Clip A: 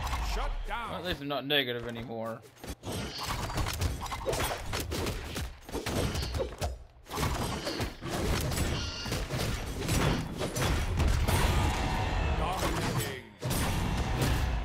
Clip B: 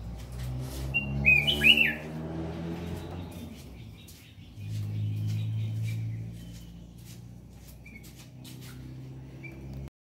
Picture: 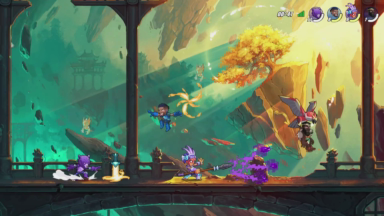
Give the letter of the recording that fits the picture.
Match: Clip A